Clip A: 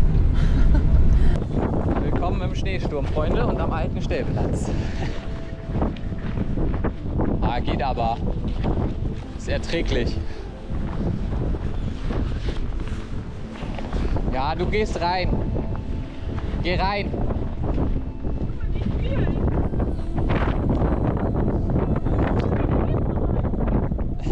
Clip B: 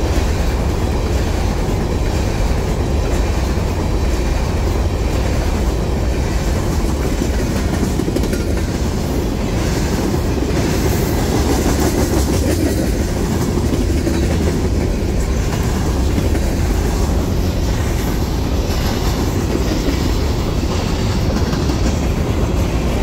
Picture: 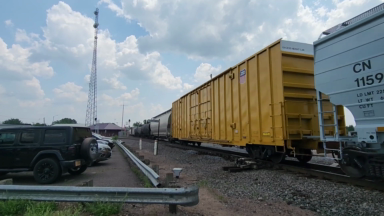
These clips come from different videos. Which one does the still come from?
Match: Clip B